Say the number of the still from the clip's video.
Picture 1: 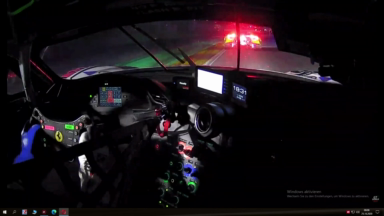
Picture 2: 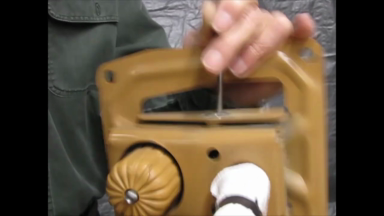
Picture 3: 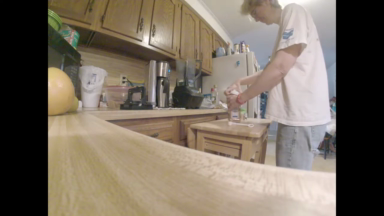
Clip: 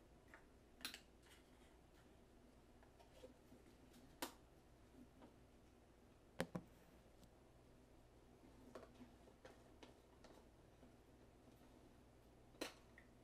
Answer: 3